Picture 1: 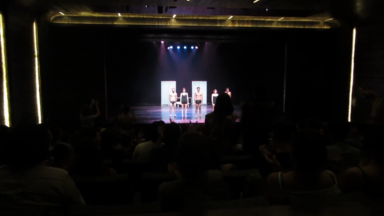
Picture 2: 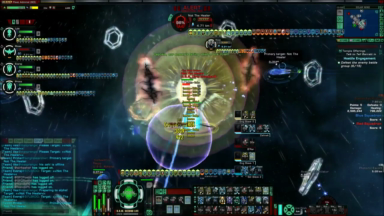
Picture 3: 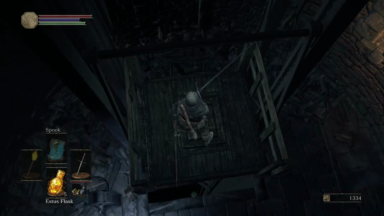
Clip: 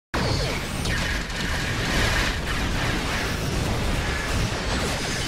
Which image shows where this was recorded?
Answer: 2